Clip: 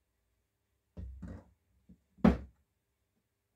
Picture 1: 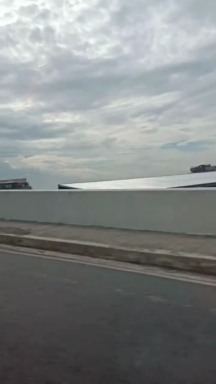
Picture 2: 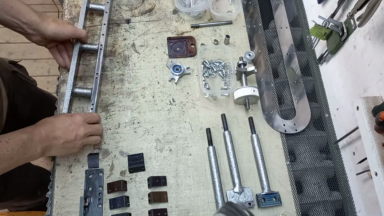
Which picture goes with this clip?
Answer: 2